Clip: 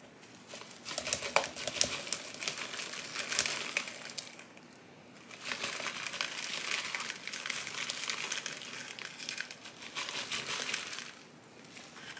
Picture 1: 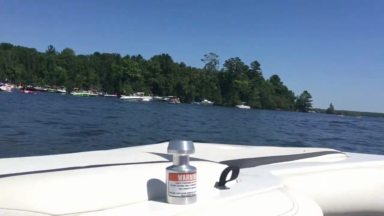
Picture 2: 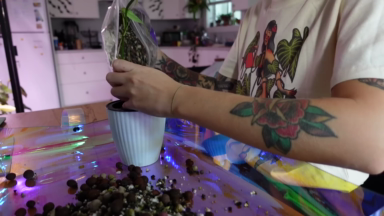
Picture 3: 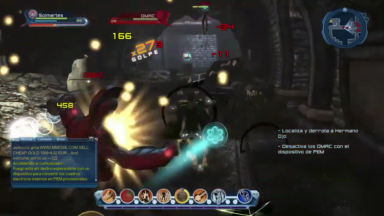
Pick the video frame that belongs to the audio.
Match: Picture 2